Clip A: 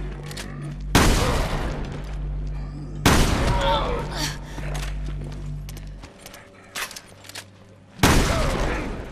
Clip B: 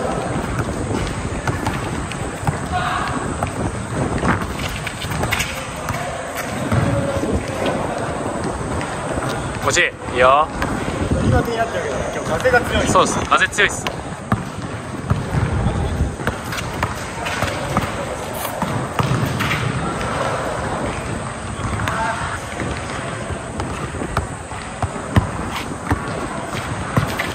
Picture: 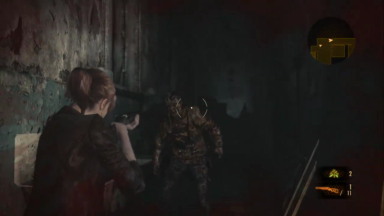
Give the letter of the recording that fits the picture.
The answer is A